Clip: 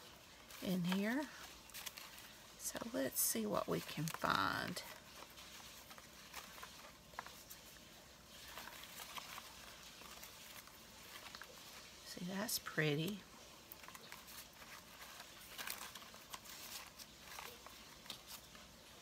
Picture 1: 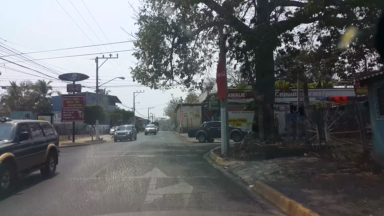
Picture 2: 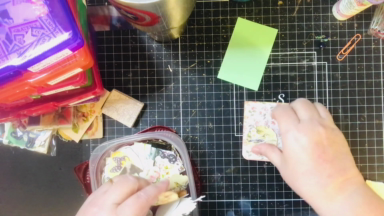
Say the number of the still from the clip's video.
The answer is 2